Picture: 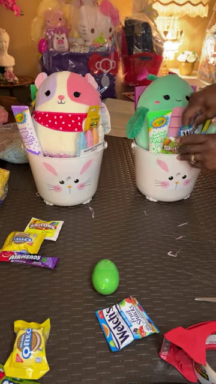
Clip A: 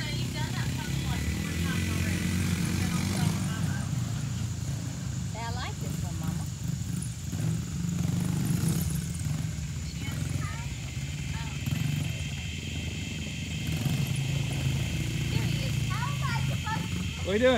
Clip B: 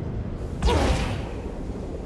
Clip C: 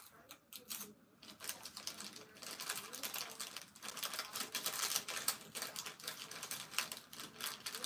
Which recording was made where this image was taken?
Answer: C